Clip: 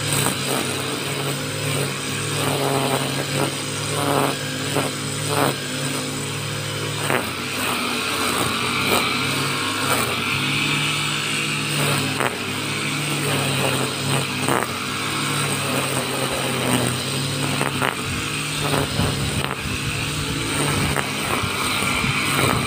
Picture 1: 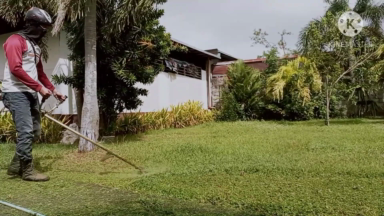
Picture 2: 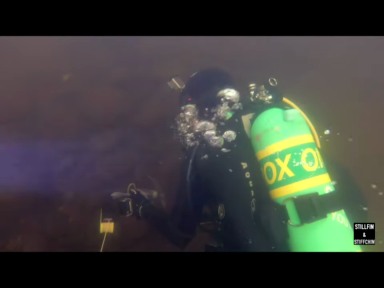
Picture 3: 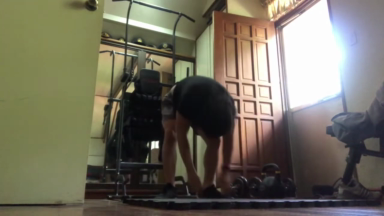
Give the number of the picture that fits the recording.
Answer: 1